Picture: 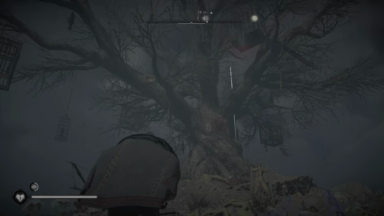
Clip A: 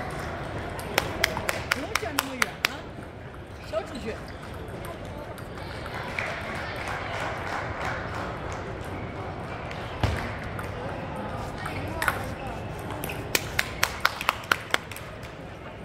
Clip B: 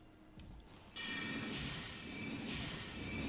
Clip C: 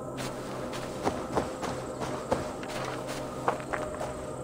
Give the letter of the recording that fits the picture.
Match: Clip C